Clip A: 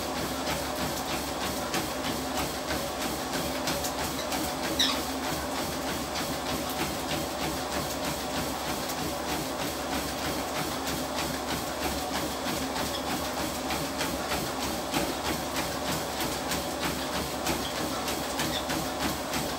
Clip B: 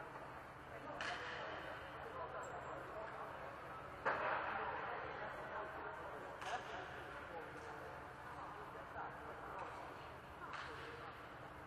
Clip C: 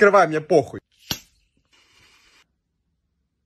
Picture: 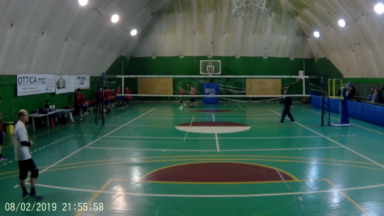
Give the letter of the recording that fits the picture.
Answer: B